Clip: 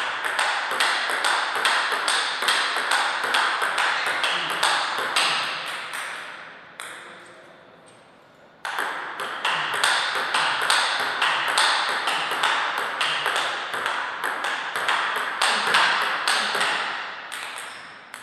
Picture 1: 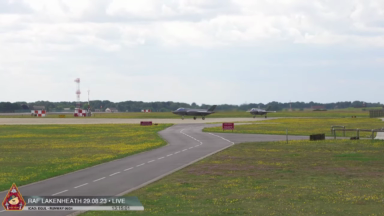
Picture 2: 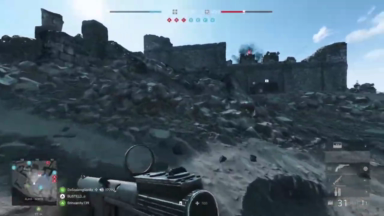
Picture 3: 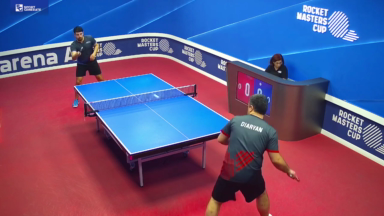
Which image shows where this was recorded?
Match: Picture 3